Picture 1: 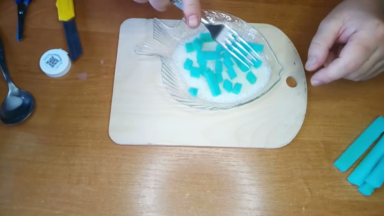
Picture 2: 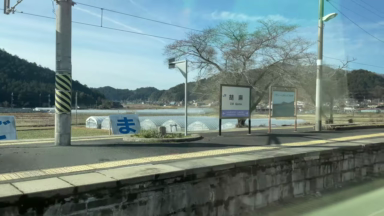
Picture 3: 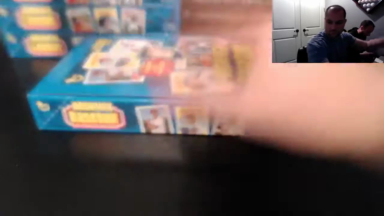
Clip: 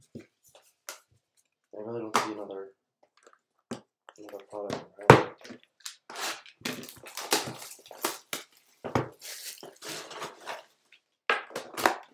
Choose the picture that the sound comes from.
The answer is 3